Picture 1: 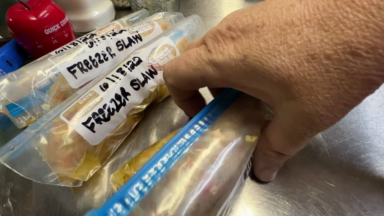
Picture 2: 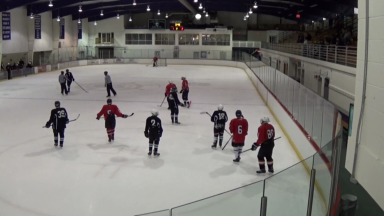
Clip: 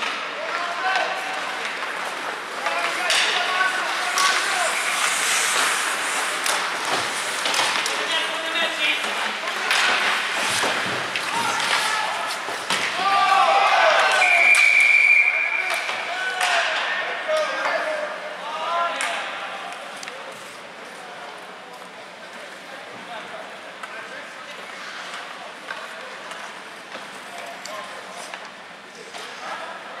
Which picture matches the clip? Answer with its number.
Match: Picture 2